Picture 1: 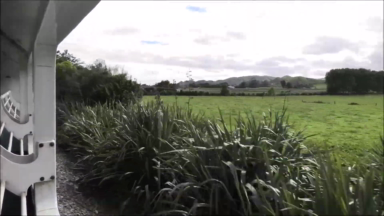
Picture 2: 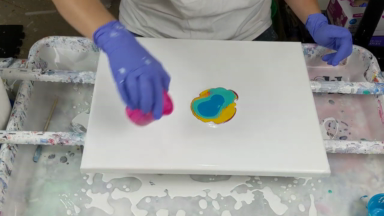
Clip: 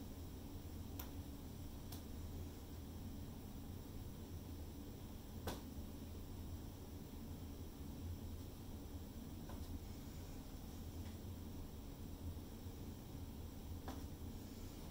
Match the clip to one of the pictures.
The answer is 2